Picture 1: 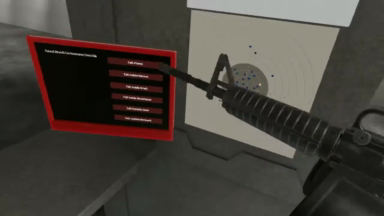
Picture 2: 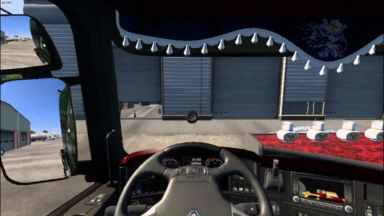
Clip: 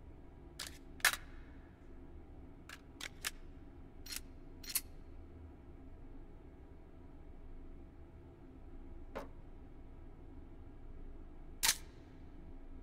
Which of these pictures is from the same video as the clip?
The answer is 1